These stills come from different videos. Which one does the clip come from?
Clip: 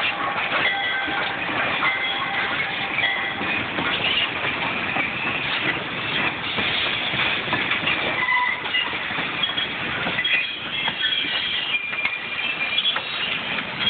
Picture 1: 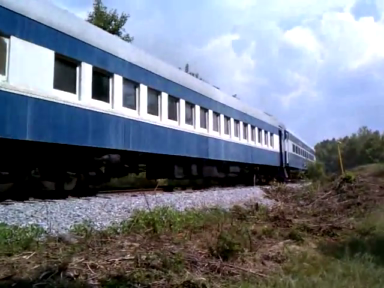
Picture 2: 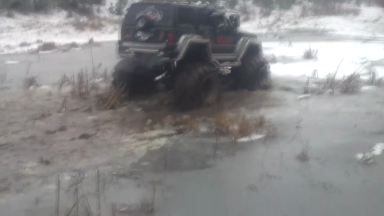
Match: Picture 1